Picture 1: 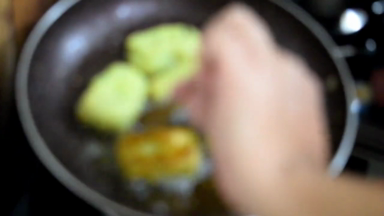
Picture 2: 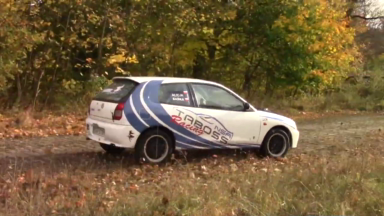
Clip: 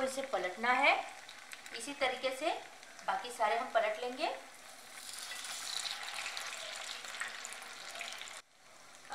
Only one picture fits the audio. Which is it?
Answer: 1